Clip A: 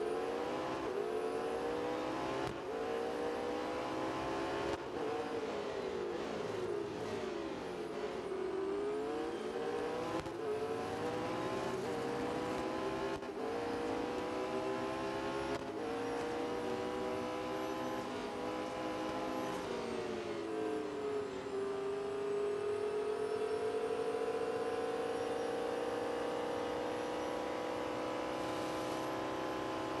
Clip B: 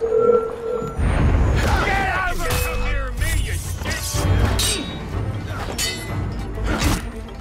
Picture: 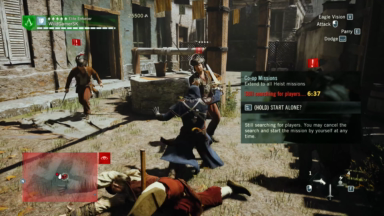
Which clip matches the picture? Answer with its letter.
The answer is B